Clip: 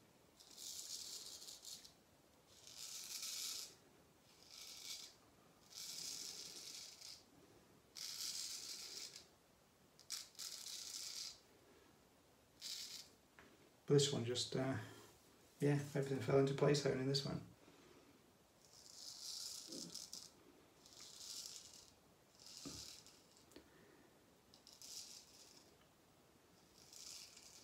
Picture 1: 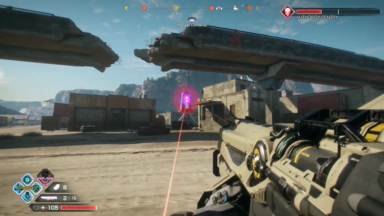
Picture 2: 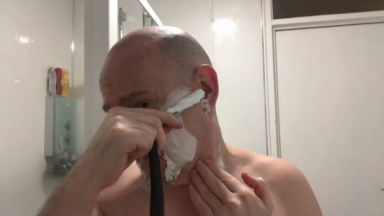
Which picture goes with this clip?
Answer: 2